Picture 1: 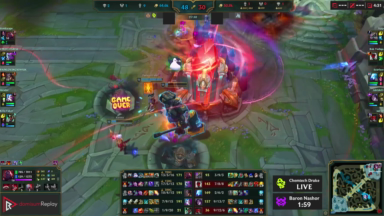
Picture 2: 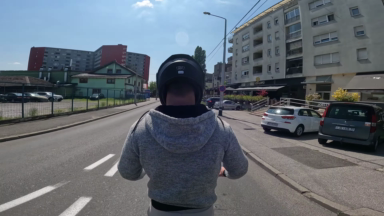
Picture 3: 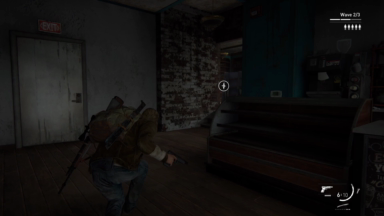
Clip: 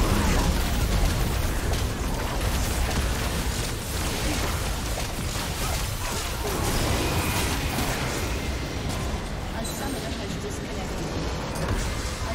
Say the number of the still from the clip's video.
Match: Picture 1